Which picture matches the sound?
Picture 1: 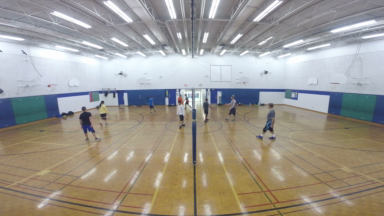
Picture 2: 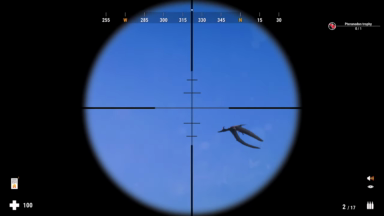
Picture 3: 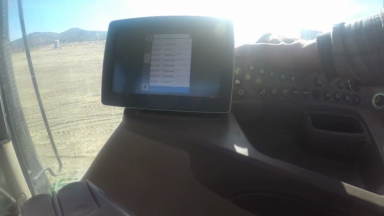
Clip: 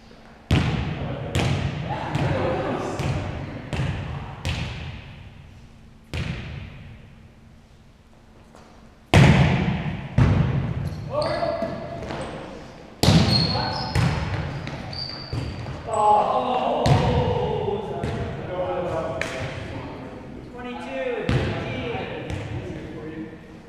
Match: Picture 1